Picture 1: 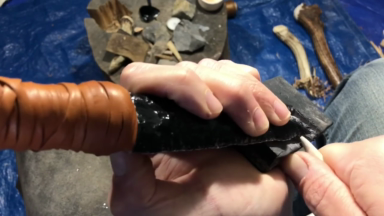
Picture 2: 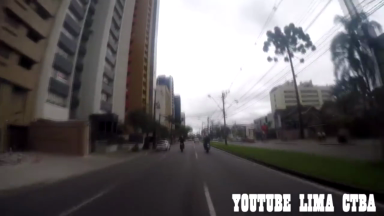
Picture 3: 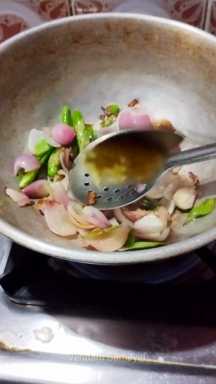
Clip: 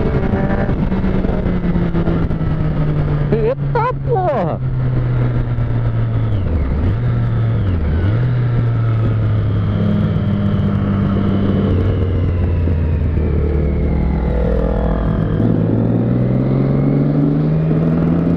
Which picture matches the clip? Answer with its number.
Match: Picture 2